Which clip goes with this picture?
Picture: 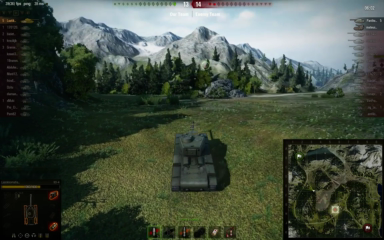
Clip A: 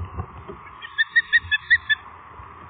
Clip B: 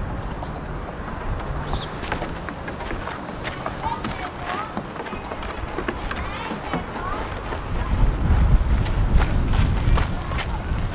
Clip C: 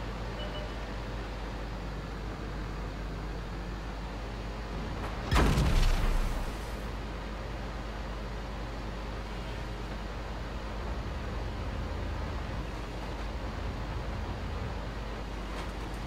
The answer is C